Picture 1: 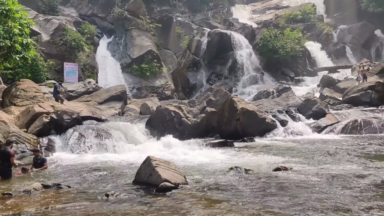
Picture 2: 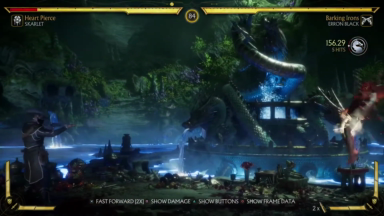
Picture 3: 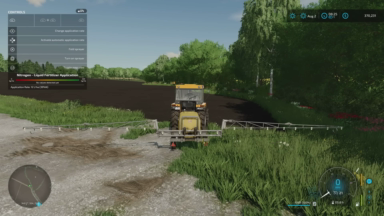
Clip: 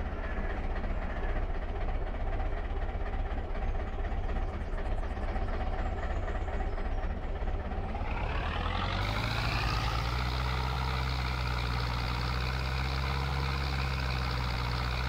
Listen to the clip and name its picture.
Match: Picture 3